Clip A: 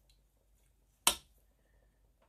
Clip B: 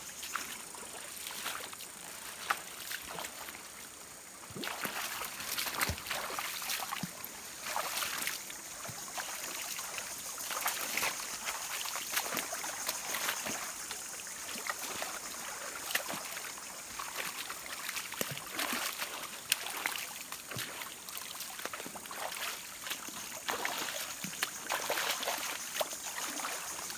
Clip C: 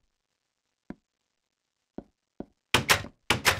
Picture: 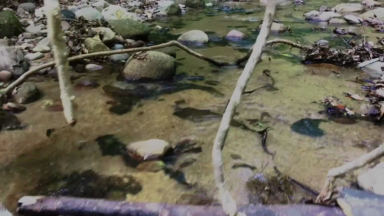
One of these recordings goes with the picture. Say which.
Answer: B